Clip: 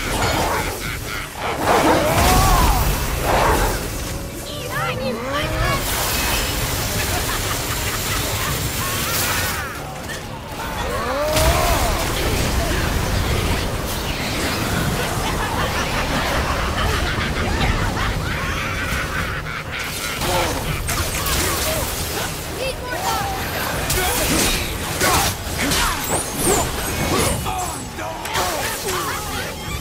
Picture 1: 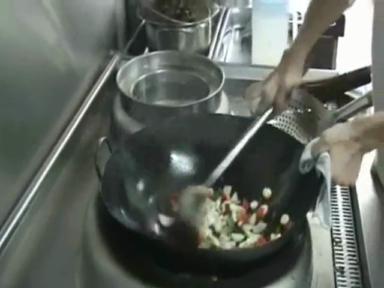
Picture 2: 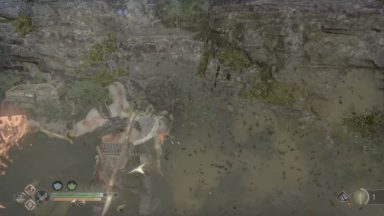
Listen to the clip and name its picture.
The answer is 2